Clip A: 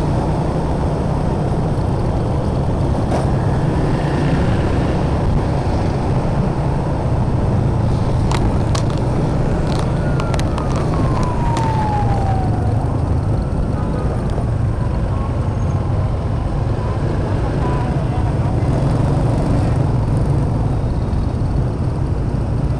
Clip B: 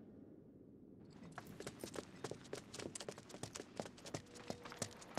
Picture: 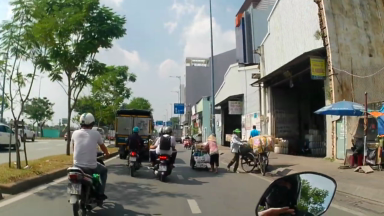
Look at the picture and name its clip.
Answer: A